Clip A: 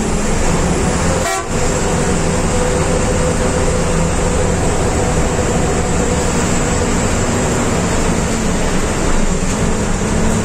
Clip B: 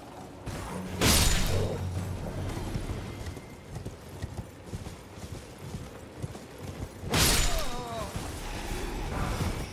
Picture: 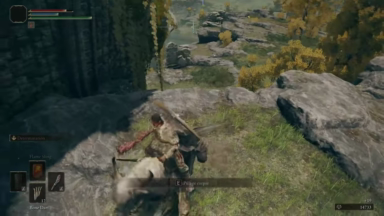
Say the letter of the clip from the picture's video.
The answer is B